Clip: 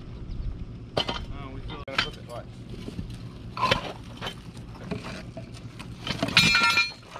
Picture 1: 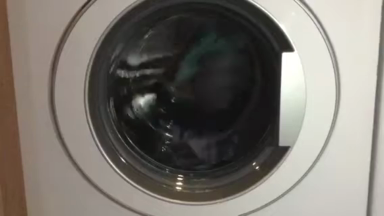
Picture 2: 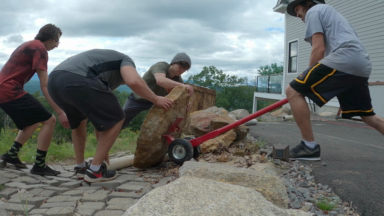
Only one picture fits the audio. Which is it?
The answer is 2